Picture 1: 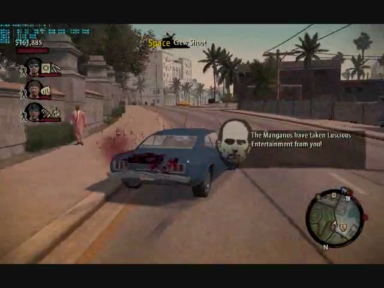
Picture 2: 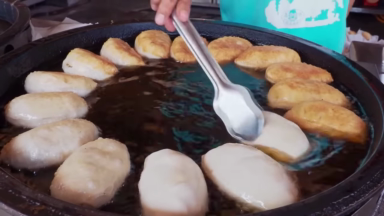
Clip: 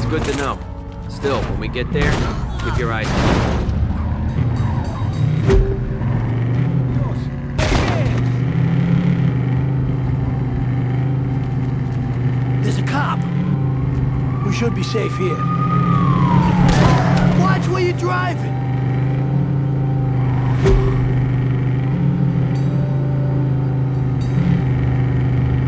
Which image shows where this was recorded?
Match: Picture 1